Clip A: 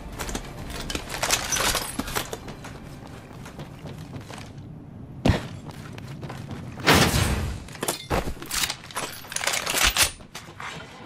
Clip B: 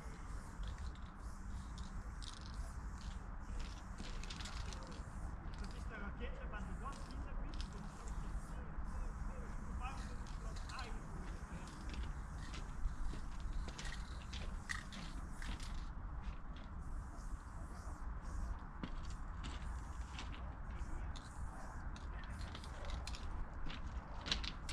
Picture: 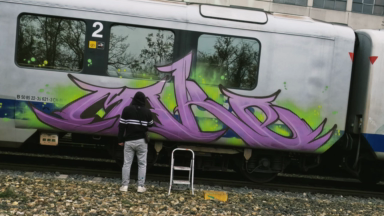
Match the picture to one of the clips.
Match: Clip B